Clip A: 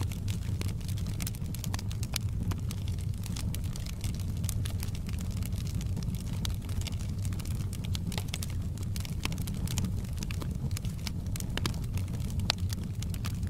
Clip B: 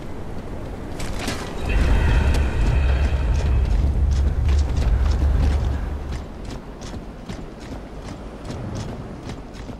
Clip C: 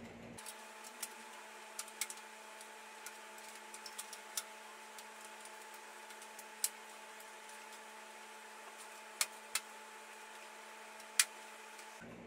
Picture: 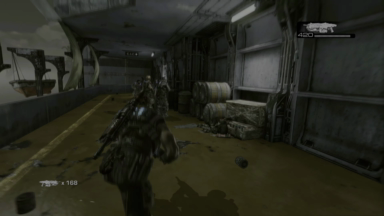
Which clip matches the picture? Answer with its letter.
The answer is B